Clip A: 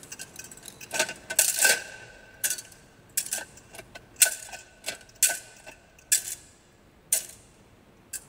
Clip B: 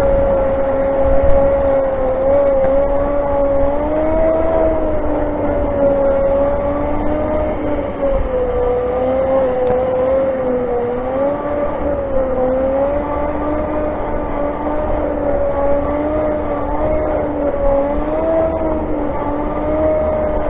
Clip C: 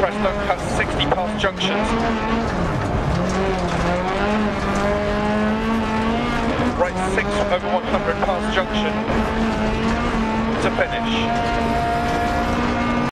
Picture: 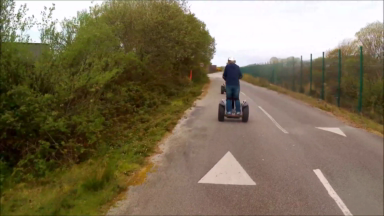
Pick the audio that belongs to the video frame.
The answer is B